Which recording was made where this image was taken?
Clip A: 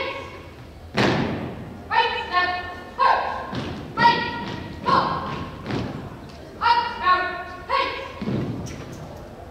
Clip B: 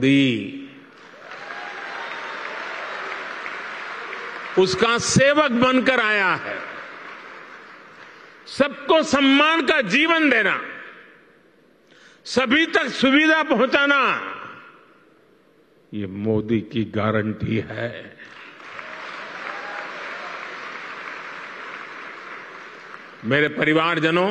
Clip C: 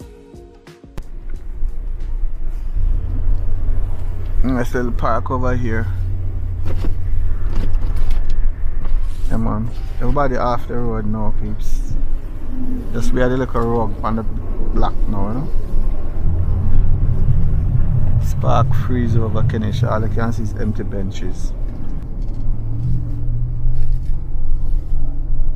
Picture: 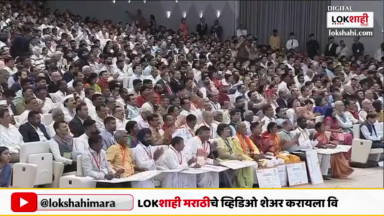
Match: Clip B